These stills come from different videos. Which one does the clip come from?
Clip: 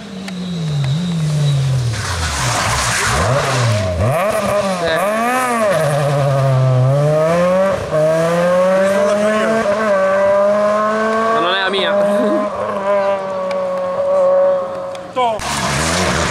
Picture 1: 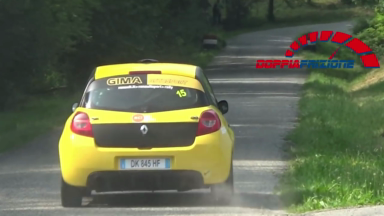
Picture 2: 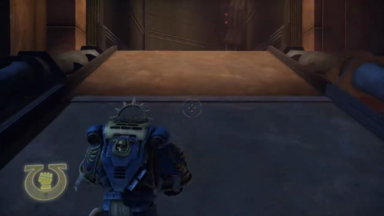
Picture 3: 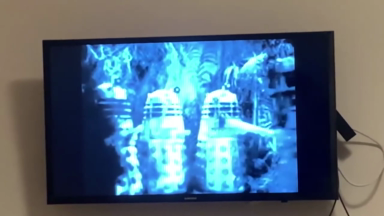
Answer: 1